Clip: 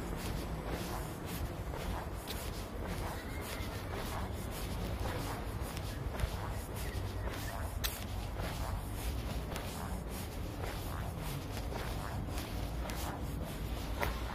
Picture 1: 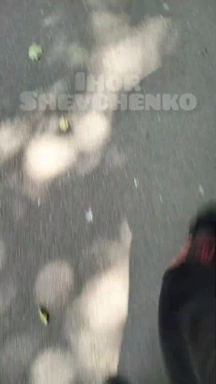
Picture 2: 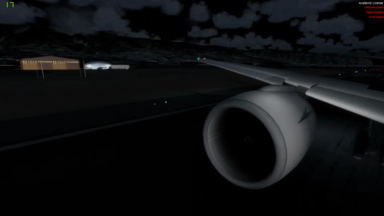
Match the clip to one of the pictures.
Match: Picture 1